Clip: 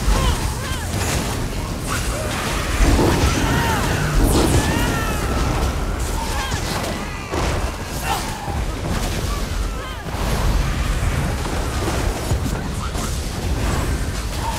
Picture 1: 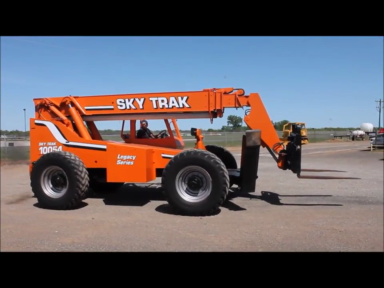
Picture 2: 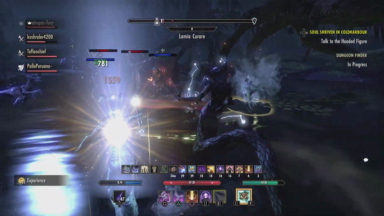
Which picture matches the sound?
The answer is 2